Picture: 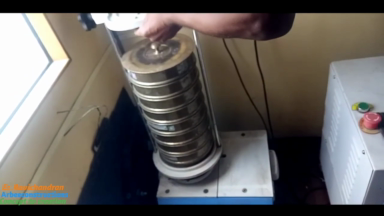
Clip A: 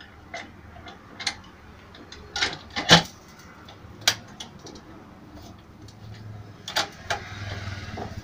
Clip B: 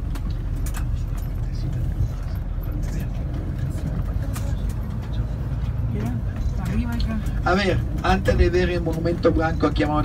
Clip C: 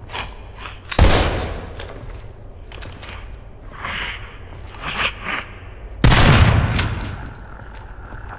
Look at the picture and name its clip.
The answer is A